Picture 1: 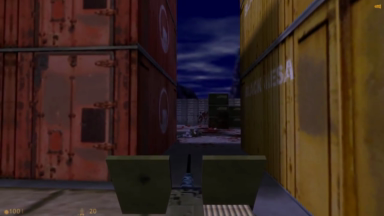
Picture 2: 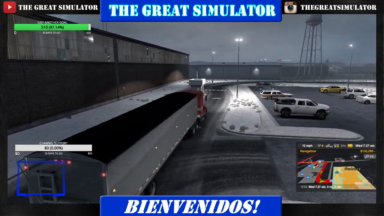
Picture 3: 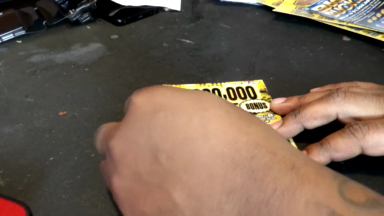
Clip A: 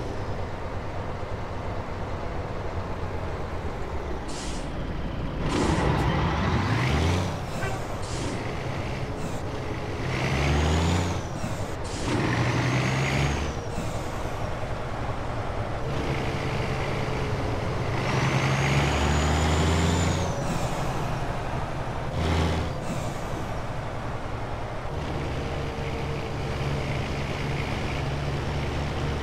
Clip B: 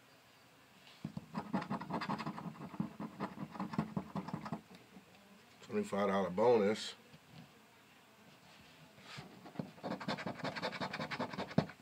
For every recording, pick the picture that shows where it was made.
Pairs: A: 2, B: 3